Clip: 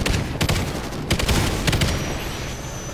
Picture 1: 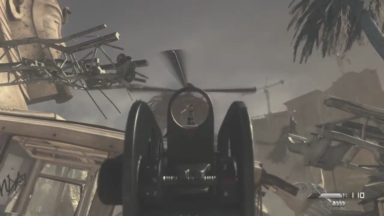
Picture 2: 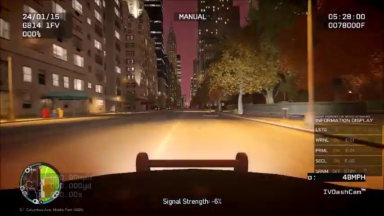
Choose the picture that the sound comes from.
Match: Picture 1